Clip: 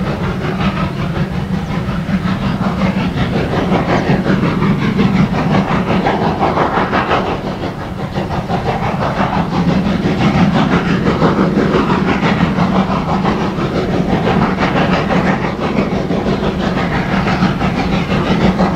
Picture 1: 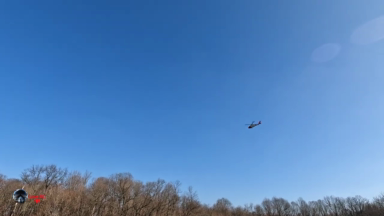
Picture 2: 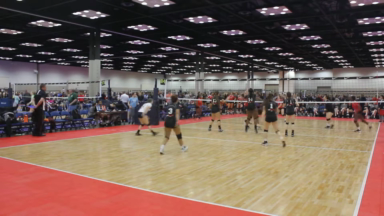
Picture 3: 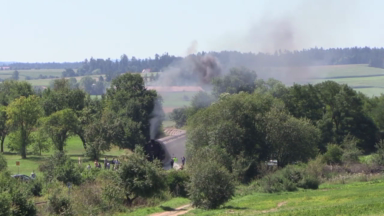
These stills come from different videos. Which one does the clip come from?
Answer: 3